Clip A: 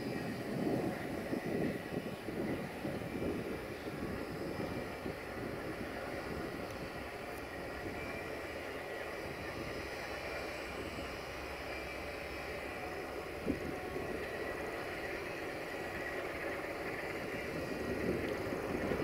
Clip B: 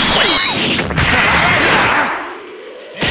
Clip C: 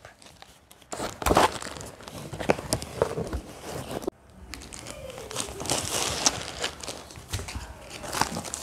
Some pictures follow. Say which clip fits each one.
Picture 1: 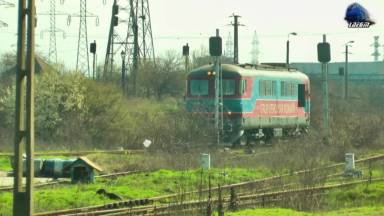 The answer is A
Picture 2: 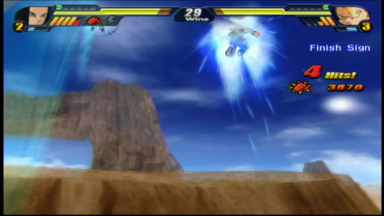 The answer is B